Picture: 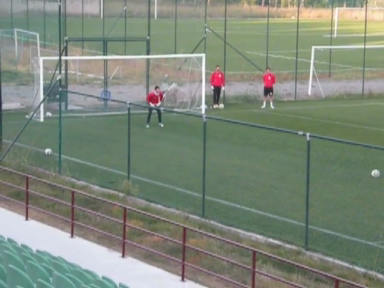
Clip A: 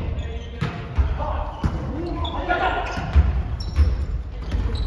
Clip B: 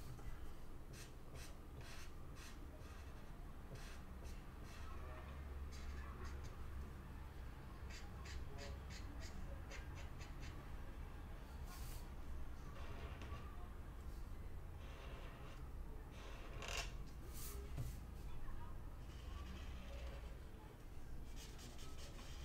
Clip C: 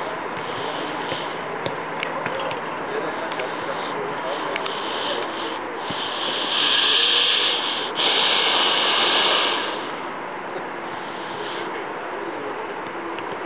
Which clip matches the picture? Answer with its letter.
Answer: C